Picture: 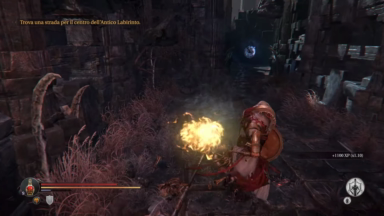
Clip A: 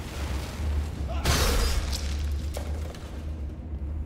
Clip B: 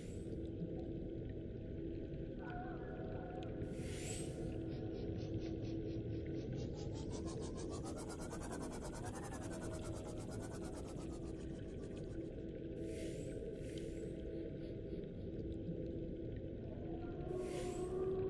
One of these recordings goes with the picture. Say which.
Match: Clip A